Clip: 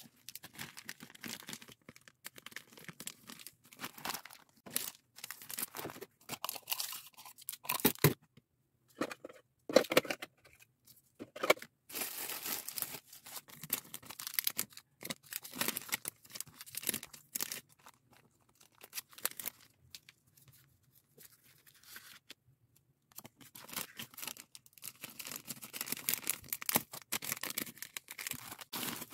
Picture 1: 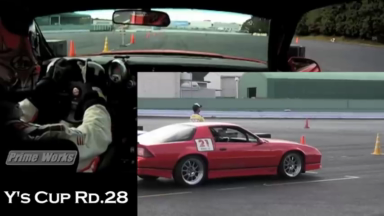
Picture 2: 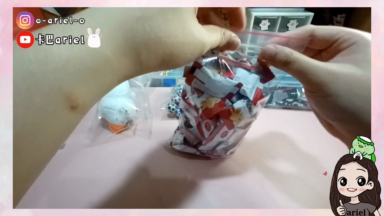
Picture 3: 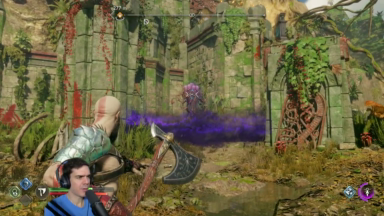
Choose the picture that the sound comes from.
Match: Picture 2